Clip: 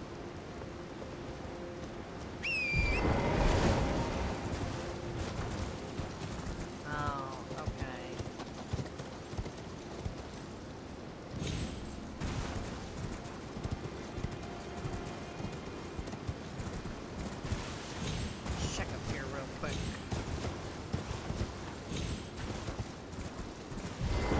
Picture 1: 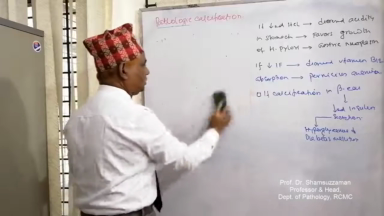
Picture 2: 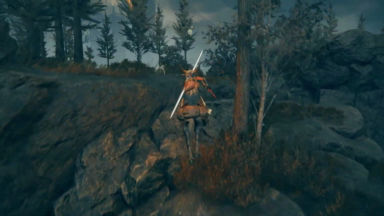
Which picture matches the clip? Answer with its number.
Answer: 2